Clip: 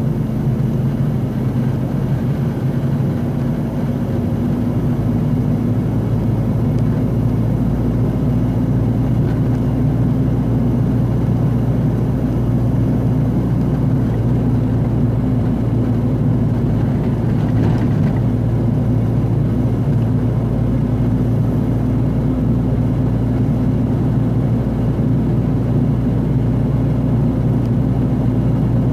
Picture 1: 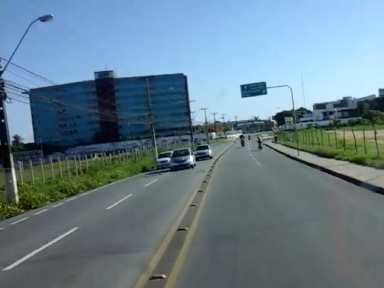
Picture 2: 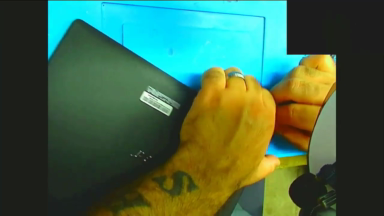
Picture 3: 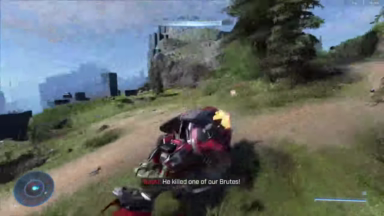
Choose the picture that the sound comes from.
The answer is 1